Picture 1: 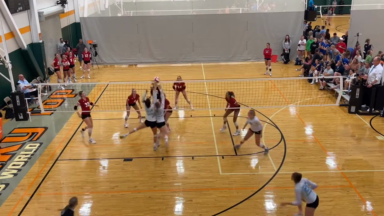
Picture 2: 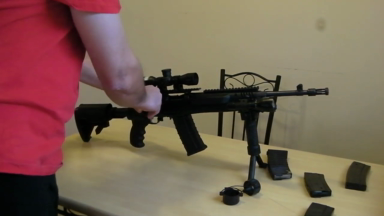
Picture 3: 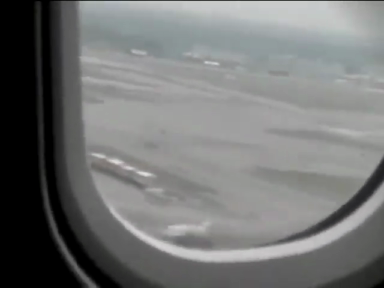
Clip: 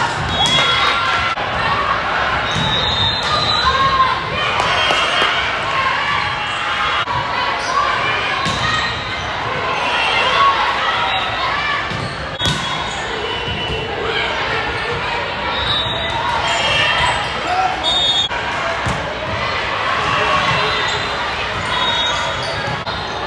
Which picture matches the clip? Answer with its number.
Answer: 1